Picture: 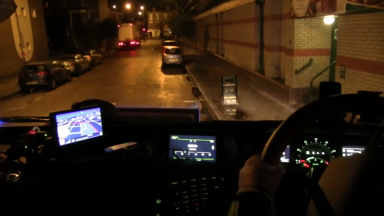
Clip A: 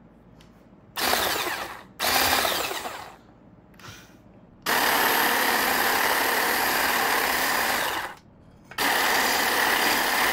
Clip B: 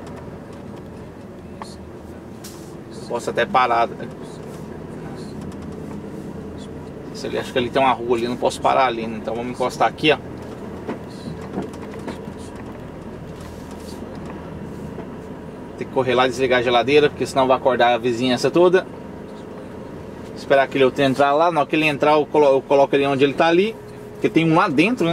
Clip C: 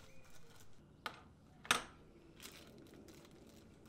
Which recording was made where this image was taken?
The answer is B